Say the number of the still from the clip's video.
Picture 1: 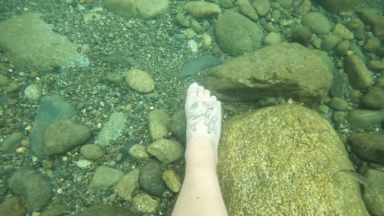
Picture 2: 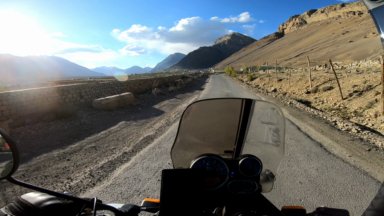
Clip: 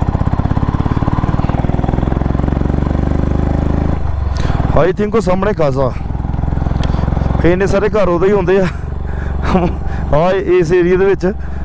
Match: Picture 2